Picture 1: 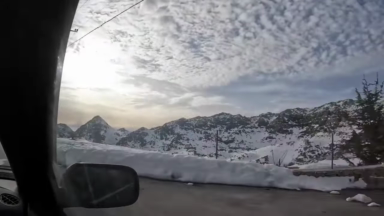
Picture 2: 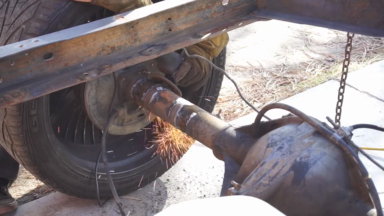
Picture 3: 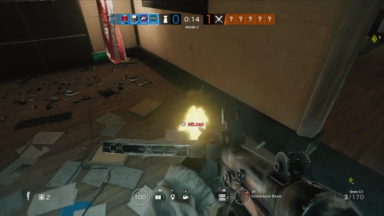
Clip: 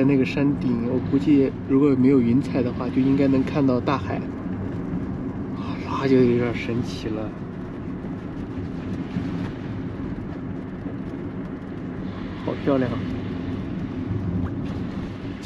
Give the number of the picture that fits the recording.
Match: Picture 1